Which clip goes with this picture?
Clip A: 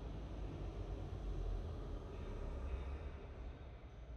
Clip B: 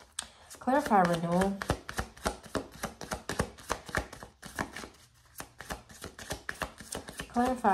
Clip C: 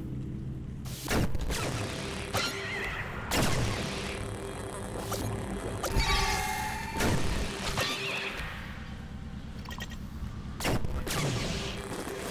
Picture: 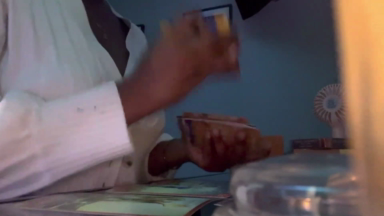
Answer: B